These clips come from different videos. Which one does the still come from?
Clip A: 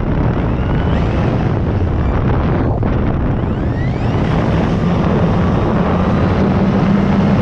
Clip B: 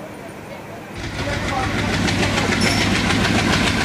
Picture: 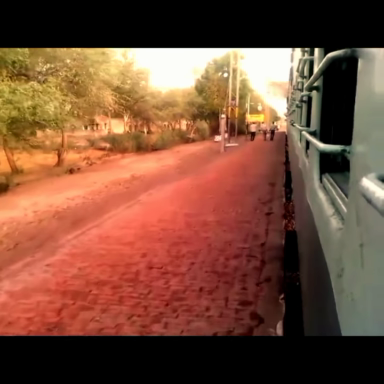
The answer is B